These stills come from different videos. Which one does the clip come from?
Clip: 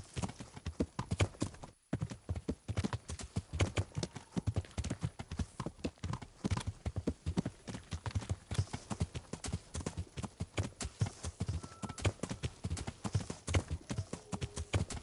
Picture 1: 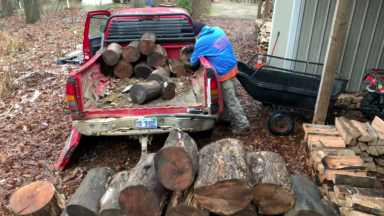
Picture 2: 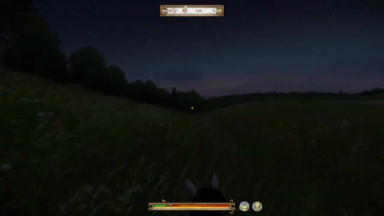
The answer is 2